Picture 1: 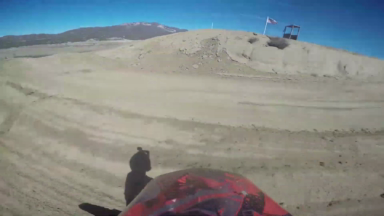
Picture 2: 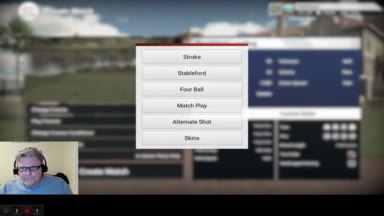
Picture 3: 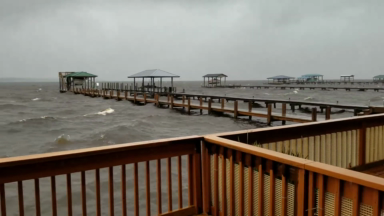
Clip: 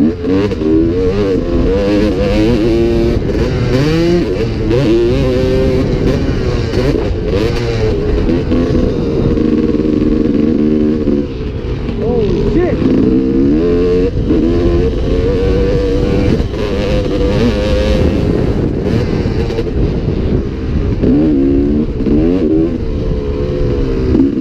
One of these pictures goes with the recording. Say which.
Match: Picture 1